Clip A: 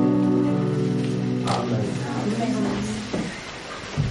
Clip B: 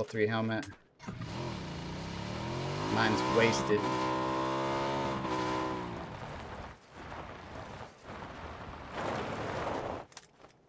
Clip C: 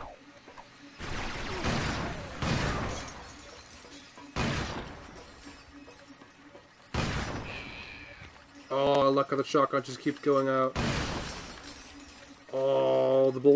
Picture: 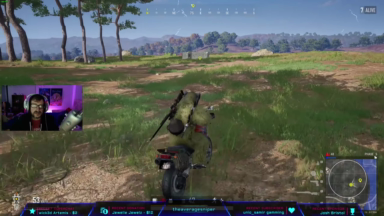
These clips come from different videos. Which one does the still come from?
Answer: B